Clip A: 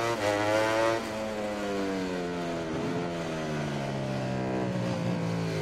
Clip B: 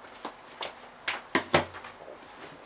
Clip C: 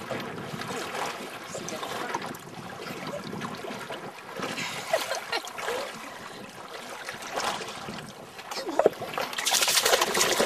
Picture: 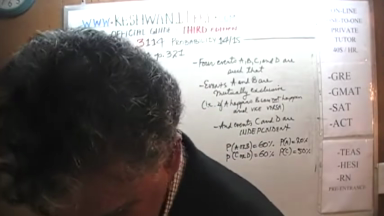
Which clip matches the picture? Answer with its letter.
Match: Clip B